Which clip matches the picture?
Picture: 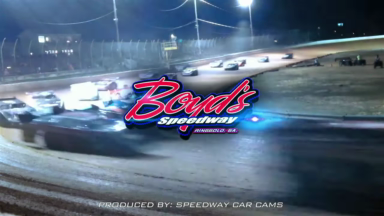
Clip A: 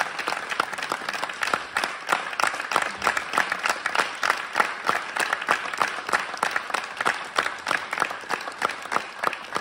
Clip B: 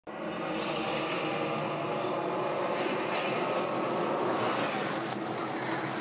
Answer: B